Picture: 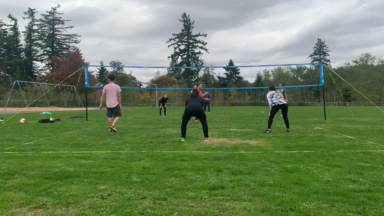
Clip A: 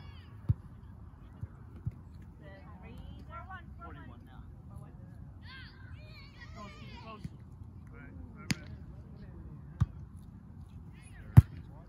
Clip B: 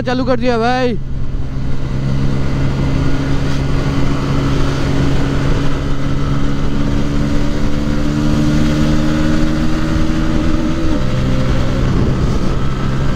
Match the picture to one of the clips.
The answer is A